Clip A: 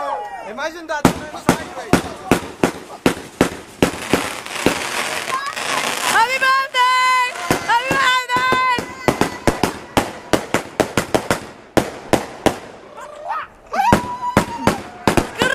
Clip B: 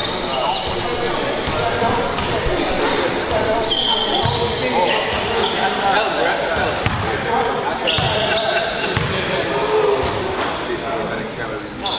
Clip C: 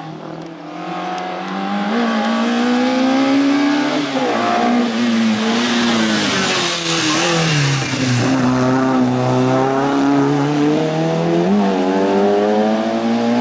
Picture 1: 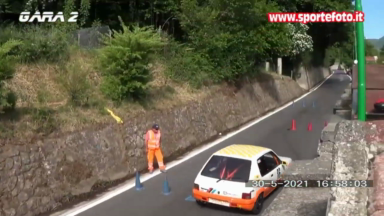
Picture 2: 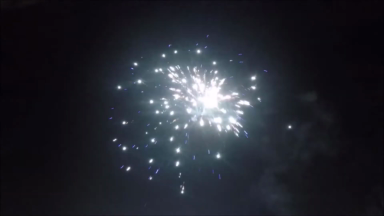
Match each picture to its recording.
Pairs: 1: C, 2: A